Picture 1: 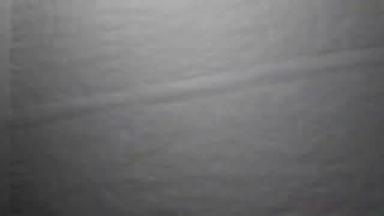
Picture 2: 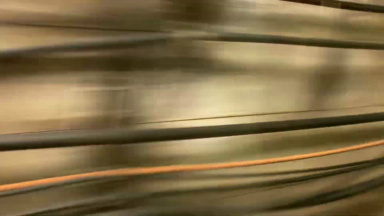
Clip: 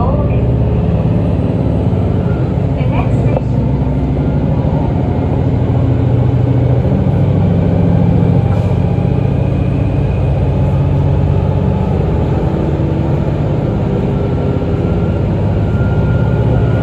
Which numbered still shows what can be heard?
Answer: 2